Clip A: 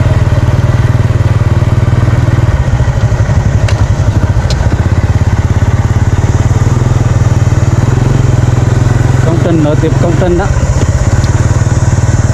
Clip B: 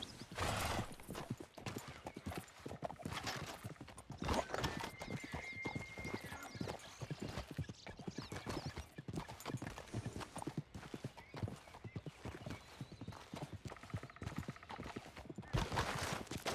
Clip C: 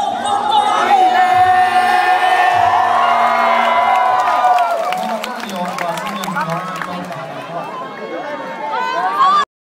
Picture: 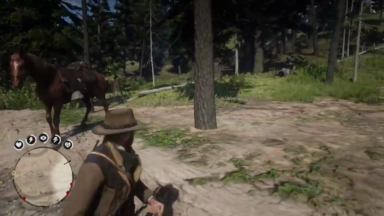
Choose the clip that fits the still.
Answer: B